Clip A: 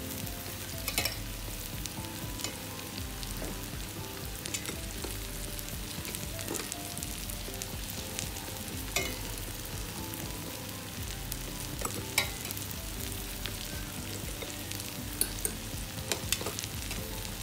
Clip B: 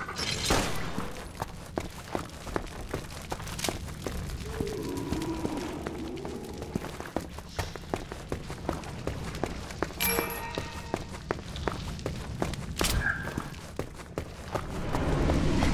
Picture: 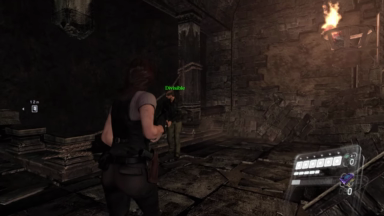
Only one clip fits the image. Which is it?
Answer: B